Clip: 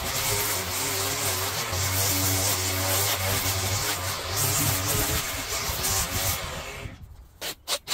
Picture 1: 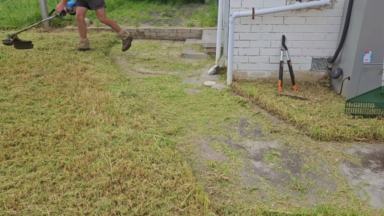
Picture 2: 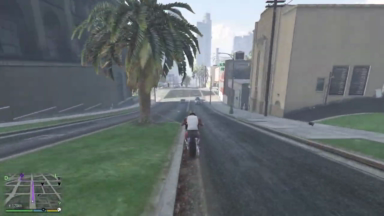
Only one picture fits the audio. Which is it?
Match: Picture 1